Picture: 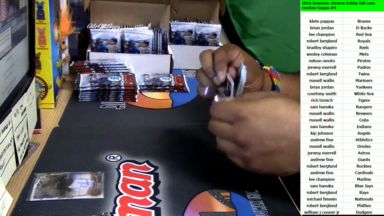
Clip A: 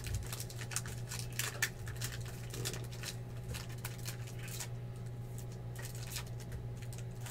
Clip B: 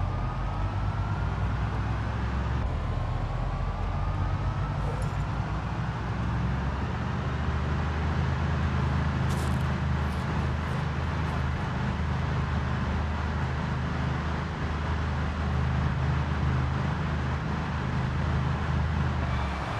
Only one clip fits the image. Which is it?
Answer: A